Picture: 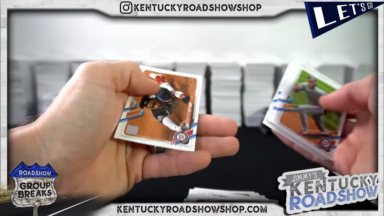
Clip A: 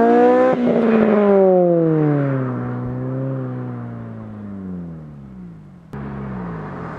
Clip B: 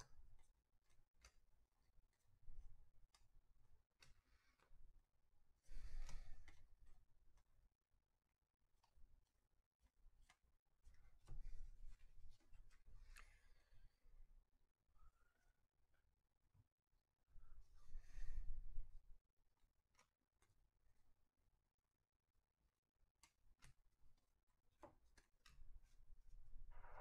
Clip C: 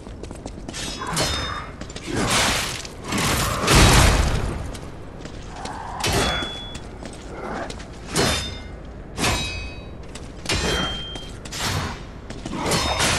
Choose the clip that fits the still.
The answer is B